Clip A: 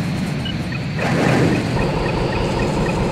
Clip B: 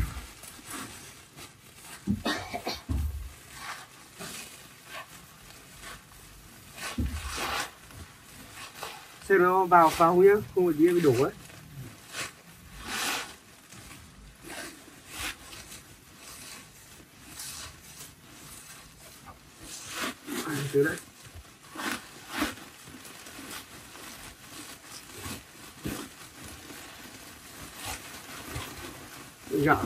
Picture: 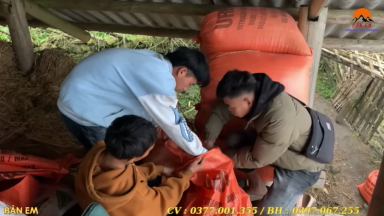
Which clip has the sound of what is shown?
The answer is B